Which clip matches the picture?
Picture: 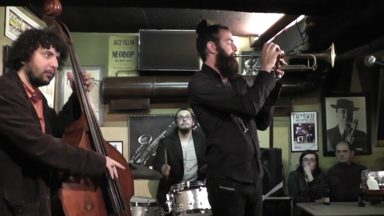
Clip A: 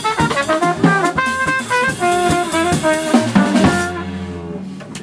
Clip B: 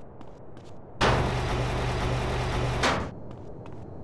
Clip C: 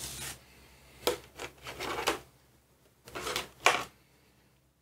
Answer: A